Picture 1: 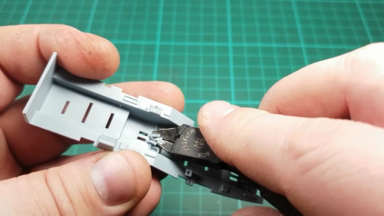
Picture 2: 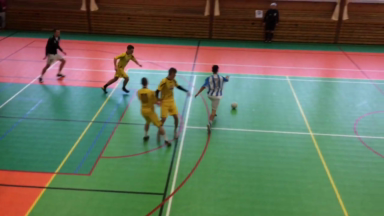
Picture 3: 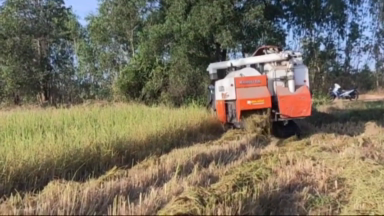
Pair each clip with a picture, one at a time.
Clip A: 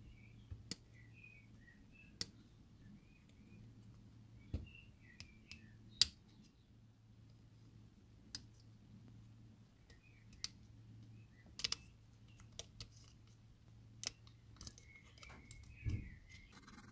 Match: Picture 1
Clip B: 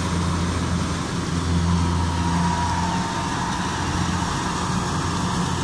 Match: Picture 3